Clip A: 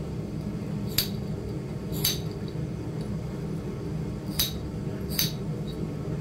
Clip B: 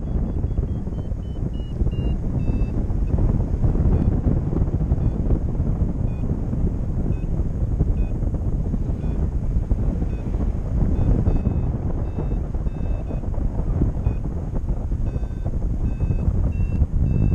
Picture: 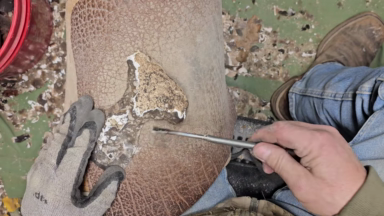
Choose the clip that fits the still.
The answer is A